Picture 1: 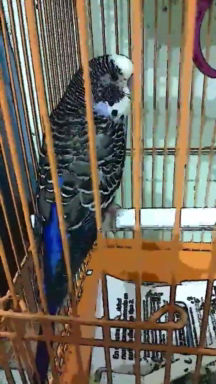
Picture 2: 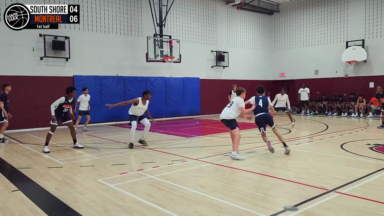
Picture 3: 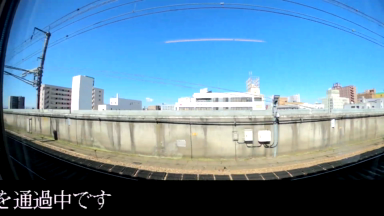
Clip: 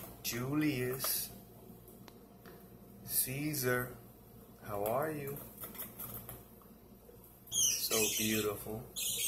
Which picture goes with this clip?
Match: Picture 1